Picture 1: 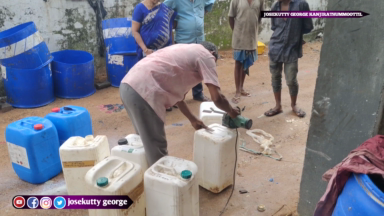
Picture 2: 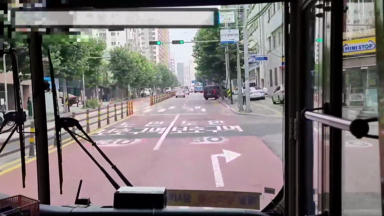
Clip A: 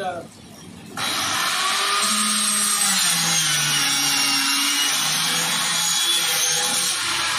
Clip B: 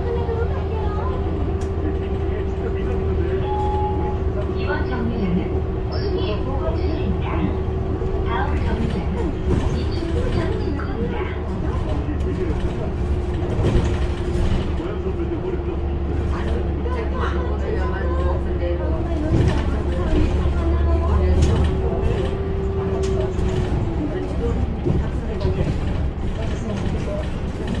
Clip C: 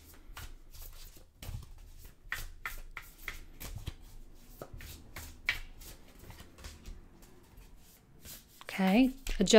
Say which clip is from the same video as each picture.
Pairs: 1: A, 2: B